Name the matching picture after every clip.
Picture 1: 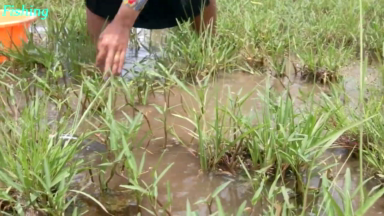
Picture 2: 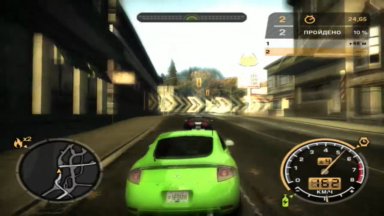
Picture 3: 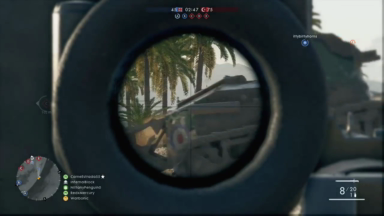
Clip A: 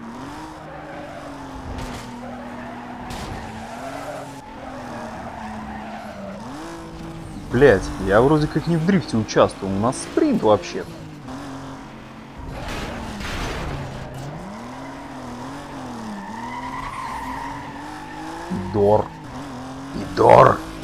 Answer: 2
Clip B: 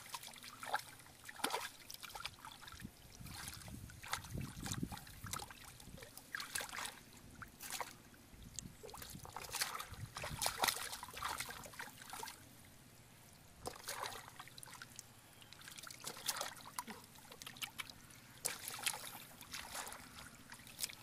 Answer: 1